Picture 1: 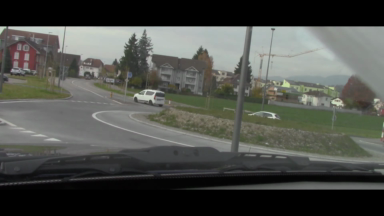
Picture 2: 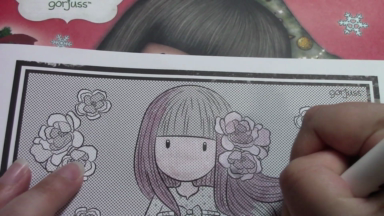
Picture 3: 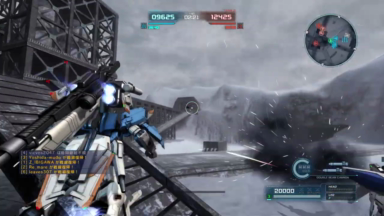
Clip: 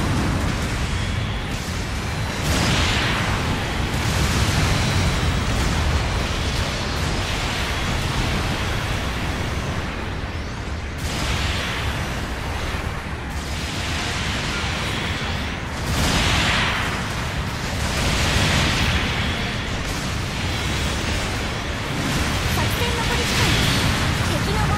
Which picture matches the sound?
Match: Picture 3